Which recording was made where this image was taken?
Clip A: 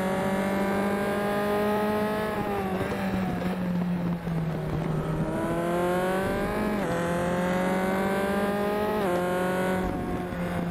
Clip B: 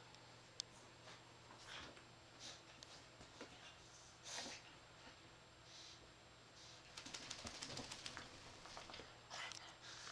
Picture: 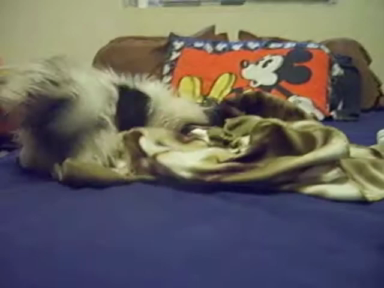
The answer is B